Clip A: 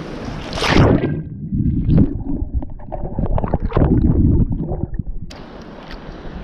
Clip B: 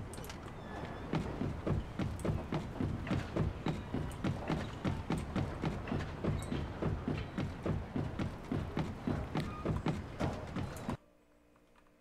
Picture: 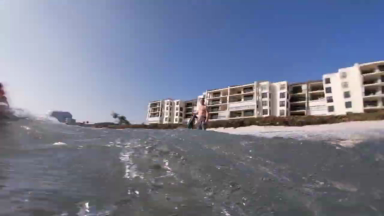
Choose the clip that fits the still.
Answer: A